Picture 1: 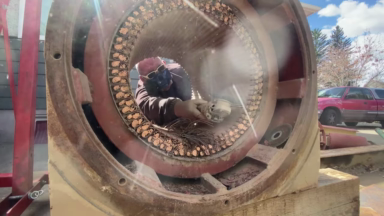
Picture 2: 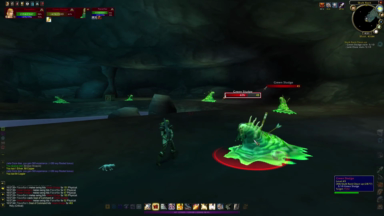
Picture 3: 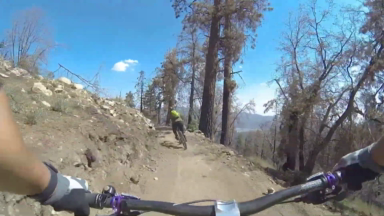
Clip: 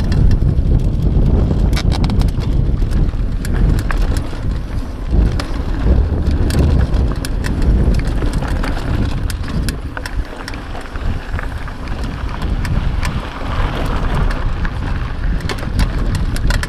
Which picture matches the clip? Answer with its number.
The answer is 3